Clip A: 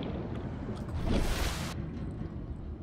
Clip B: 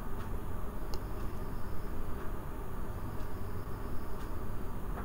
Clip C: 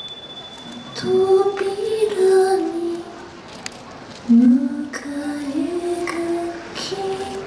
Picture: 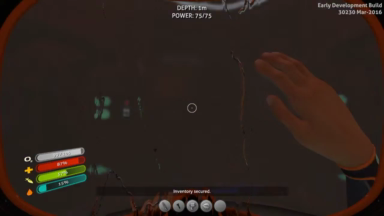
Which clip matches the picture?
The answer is A